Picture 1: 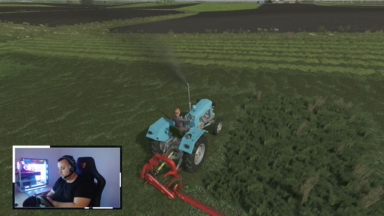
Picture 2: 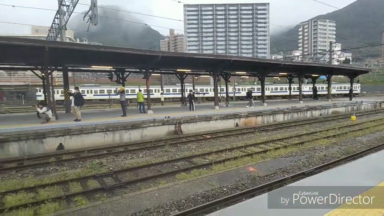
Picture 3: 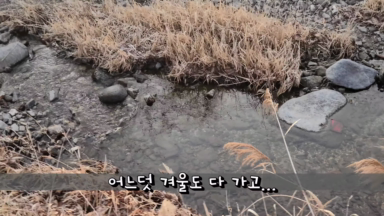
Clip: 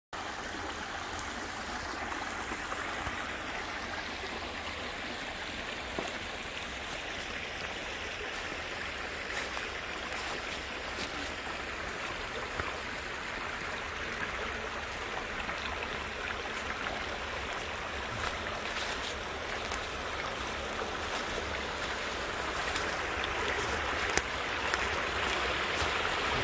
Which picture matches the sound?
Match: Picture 3